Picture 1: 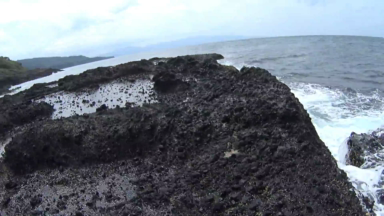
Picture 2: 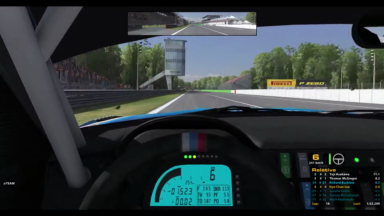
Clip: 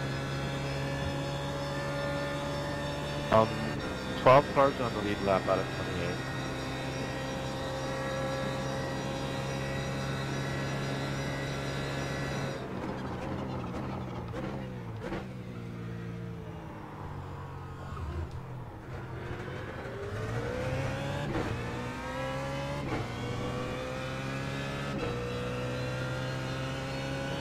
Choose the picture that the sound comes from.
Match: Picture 2